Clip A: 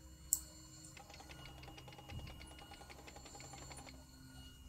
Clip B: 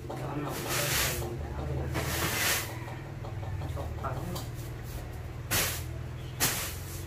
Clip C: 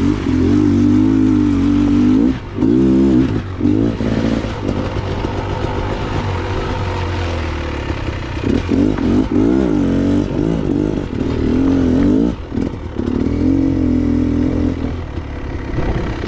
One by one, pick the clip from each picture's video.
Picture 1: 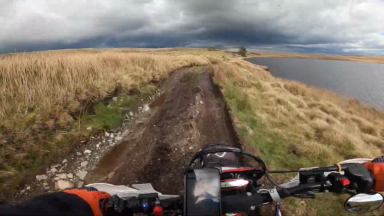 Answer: C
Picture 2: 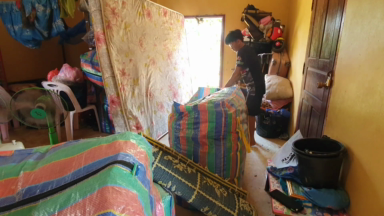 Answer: B